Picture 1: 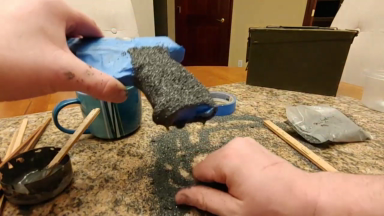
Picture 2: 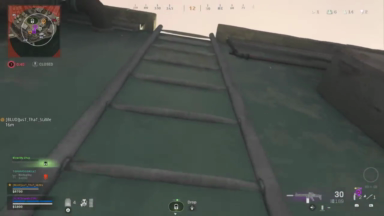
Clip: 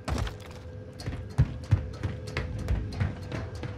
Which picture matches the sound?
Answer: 2